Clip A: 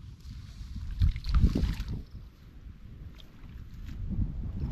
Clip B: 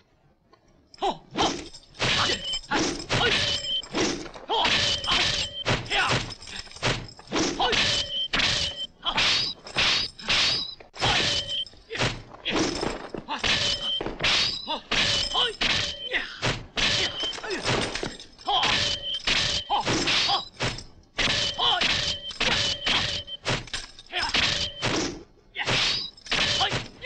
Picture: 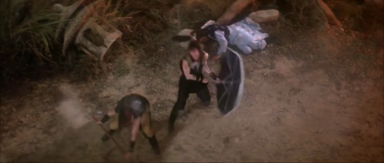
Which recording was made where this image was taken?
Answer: B